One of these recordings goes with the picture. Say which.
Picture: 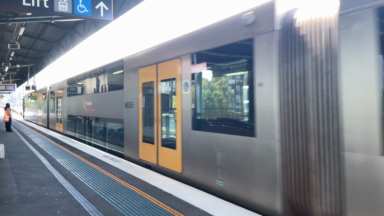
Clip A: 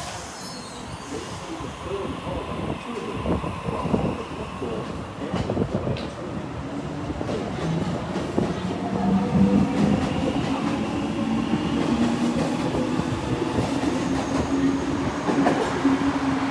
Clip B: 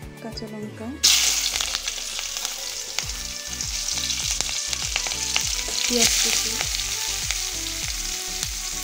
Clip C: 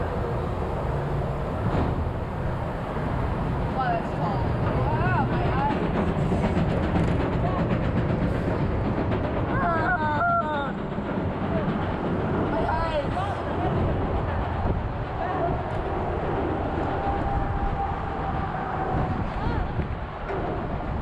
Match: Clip A